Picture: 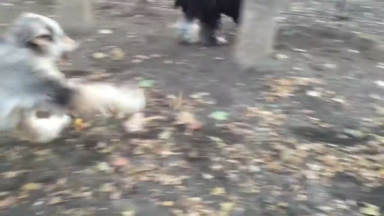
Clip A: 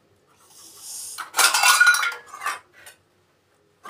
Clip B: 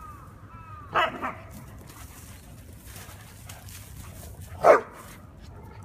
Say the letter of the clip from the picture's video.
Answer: B